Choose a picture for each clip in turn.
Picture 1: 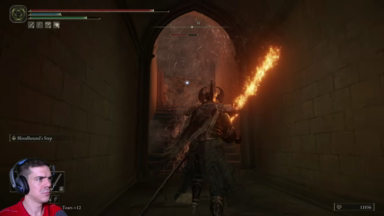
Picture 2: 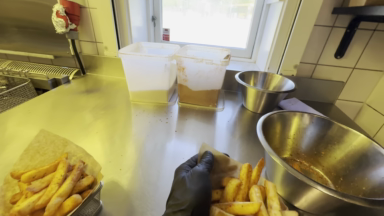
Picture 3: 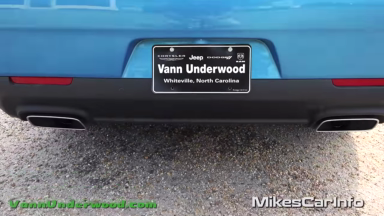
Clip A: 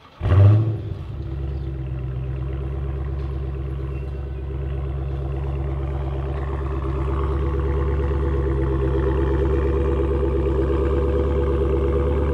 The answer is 3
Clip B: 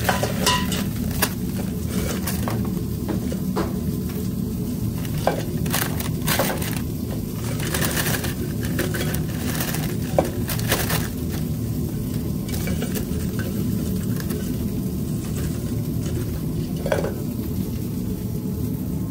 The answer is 2